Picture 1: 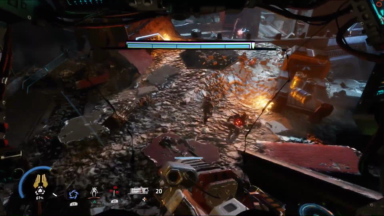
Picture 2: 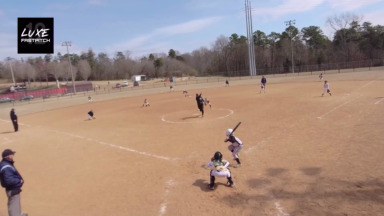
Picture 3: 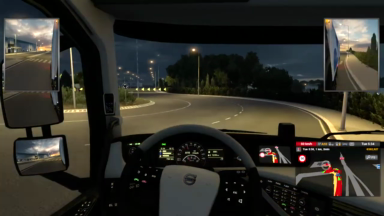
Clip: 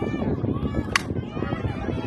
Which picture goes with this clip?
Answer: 2